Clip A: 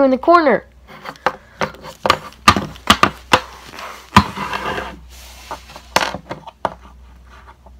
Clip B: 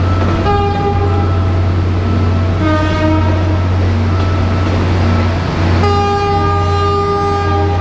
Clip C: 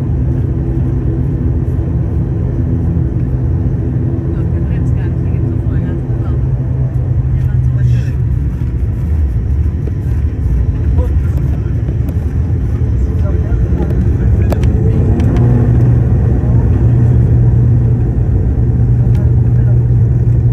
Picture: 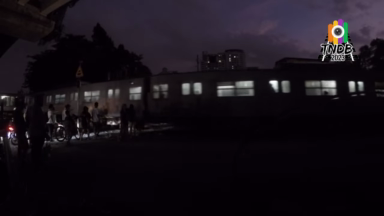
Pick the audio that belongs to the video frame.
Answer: B